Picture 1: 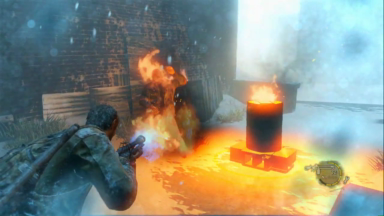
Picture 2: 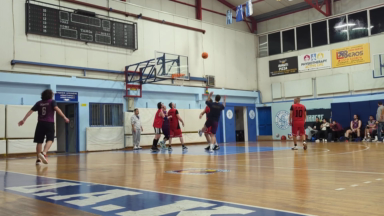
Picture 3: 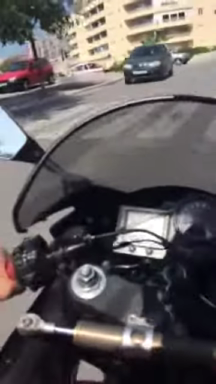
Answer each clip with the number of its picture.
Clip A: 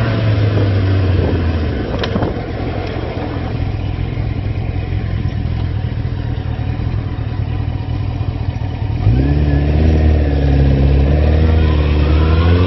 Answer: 3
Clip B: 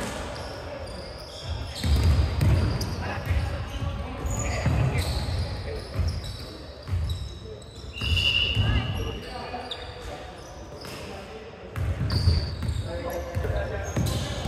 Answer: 2